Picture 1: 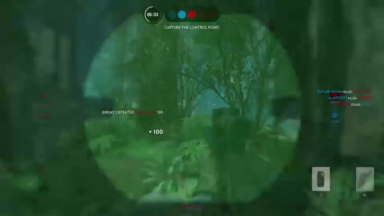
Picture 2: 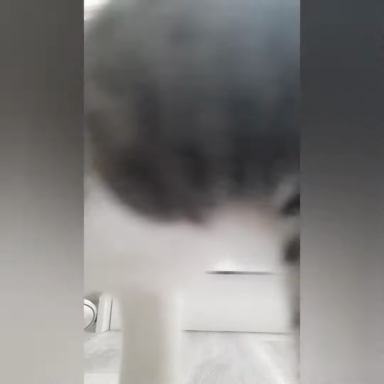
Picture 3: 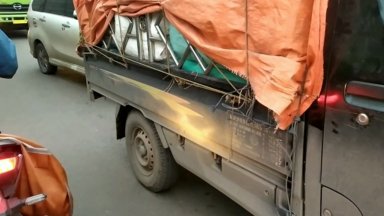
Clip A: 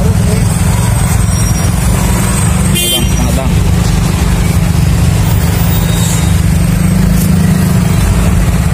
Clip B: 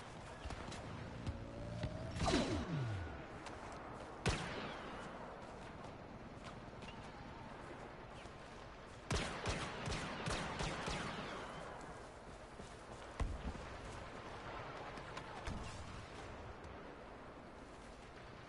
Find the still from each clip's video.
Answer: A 3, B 1